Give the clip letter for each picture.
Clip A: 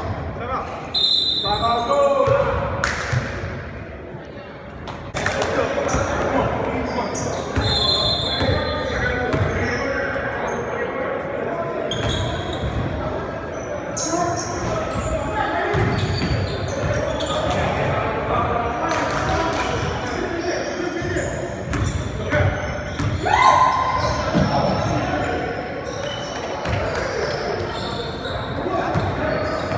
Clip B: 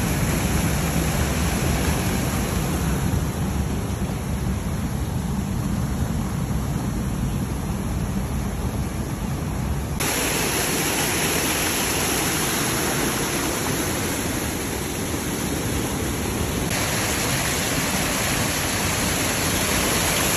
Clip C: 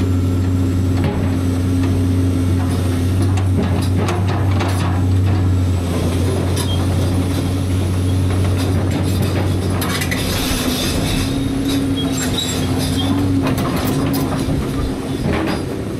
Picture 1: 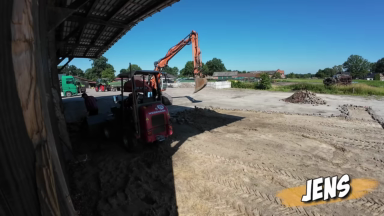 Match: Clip C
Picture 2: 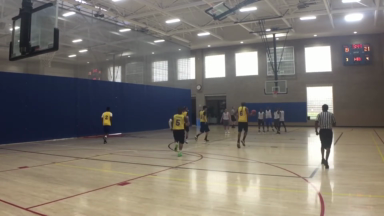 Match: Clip A